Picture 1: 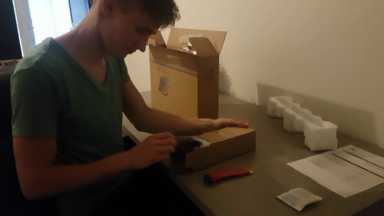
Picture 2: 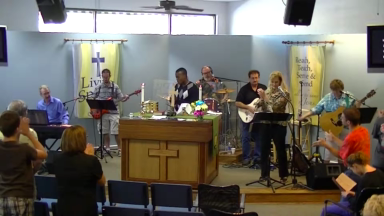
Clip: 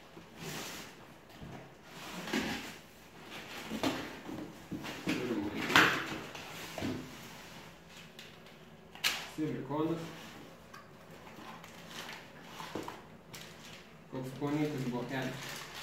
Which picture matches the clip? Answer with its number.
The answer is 1